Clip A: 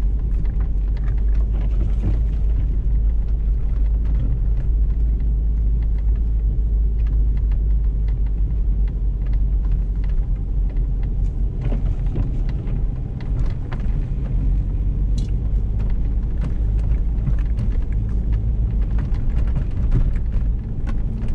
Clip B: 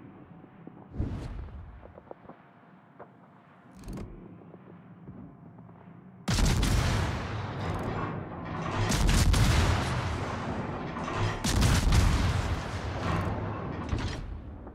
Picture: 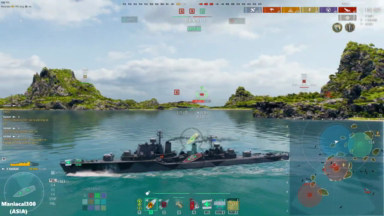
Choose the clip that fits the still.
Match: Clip B